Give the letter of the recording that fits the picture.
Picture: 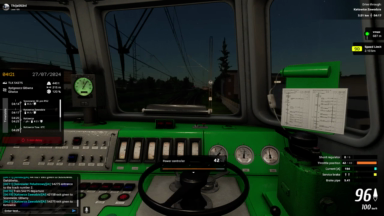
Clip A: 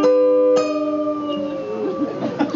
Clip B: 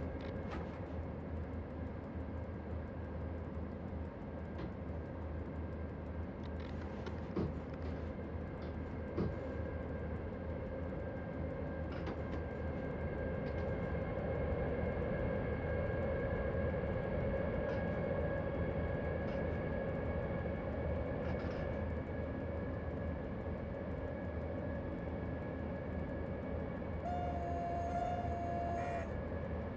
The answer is B